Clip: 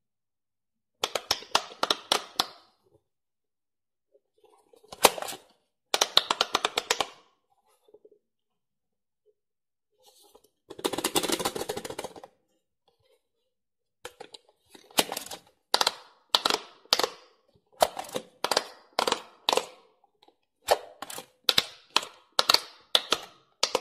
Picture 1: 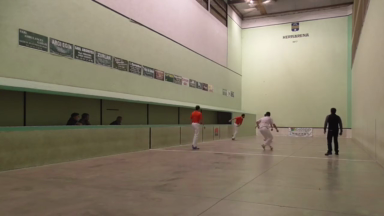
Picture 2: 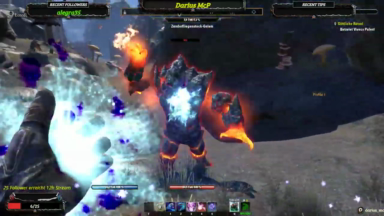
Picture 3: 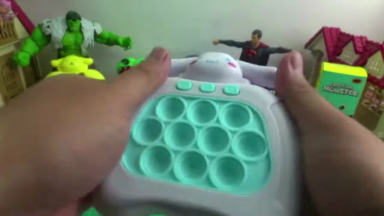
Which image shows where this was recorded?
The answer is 3